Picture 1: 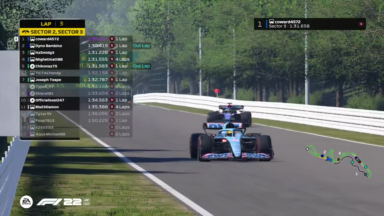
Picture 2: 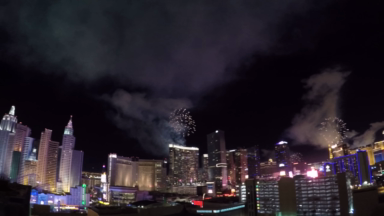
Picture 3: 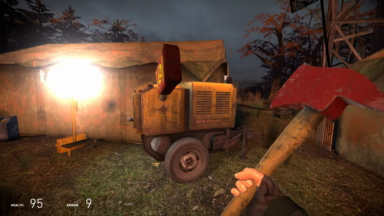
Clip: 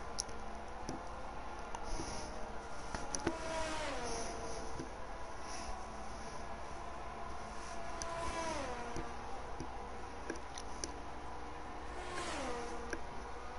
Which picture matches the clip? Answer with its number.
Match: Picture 1